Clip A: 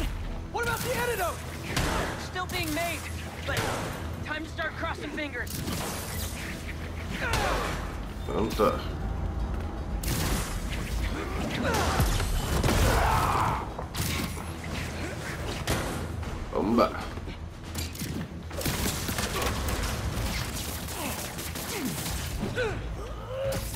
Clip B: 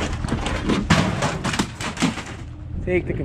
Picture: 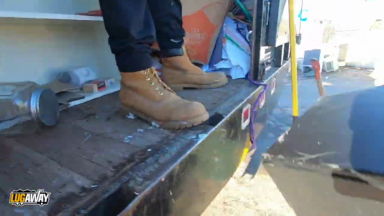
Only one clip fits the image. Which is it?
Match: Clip B